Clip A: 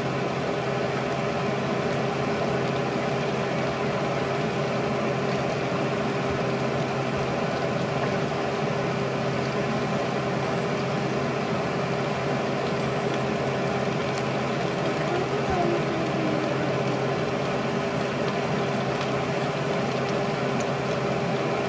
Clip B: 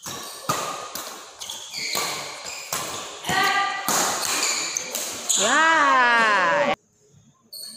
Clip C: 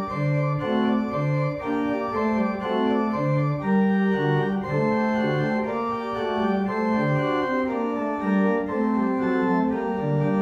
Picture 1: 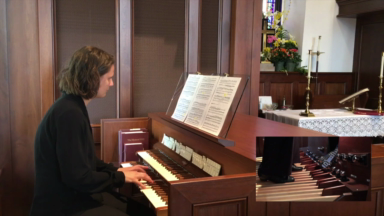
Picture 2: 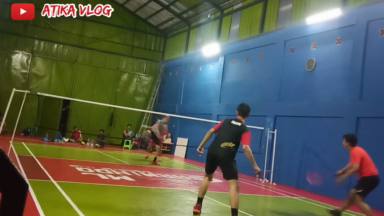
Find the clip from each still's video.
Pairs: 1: C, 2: B